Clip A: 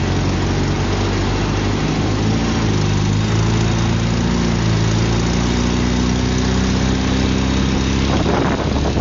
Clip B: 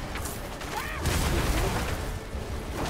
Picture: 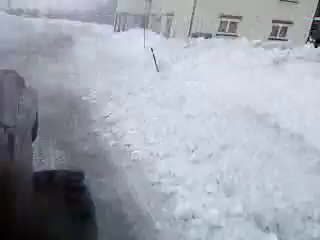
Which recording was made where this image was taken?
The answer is A